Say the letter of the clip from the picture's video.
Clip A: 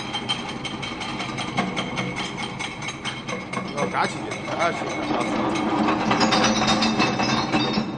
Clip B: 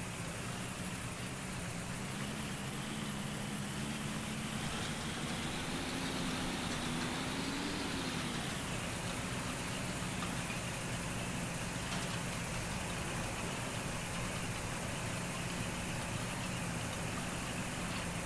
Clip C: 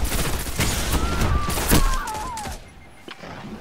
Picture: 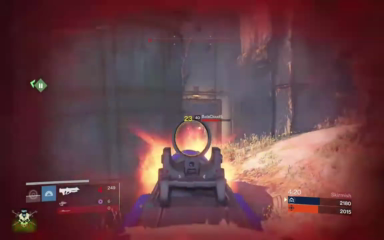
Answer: C